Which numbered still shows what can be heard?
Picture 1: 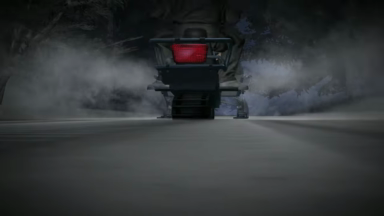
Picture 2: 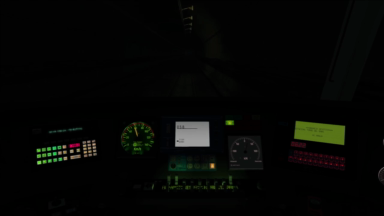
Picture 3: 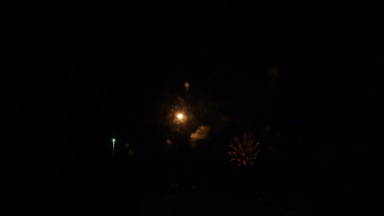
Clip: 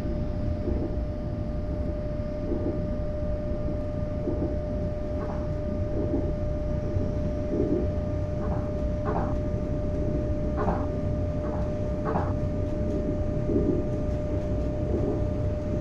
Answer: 2